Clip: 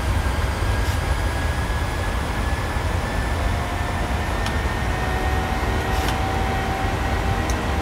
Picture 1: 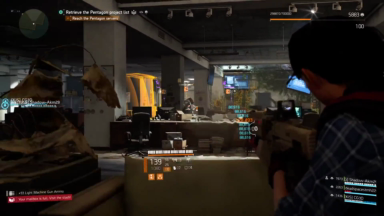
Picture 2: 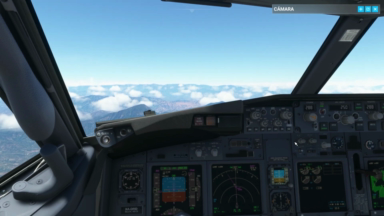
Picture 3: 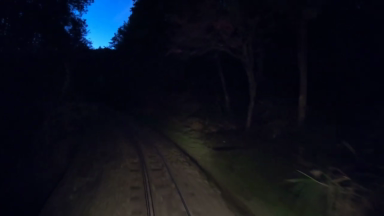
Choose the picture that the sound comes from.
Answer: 2